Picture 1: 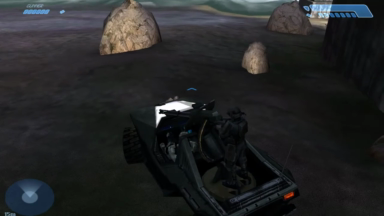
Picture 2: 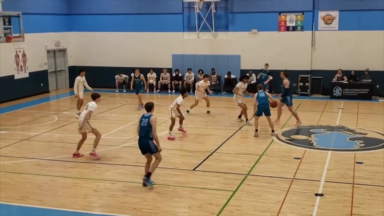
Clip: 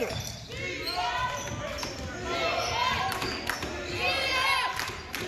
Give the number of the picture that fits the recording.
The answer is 2